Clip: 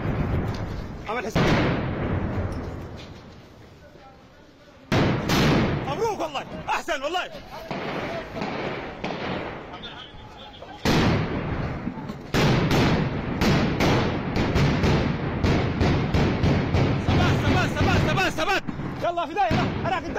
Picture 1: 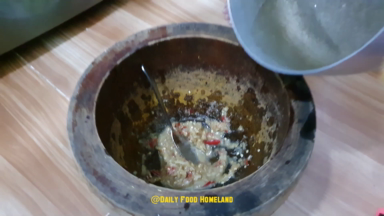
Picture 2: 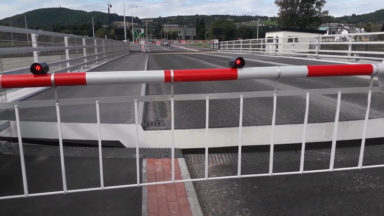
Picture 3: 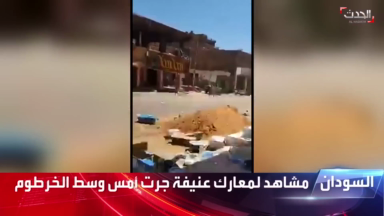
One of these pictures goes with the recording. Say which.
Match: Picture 3